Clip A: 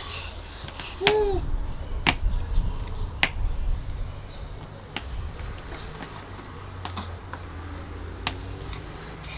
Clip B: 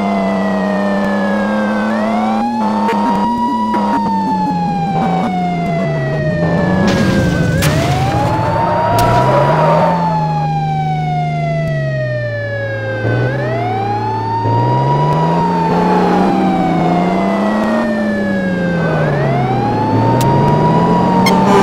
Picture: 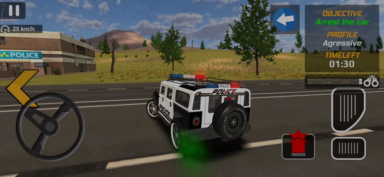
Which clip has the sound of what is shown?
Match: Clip B